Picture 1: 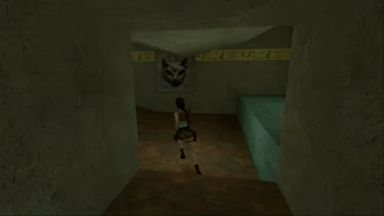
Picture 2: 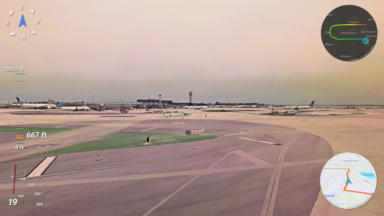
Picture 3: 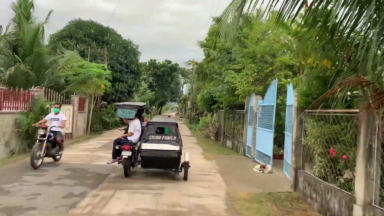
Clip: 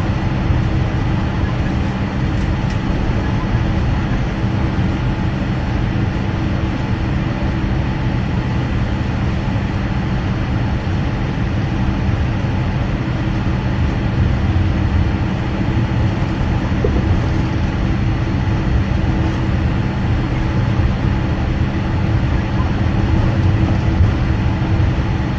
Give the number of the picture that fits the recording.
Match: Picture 2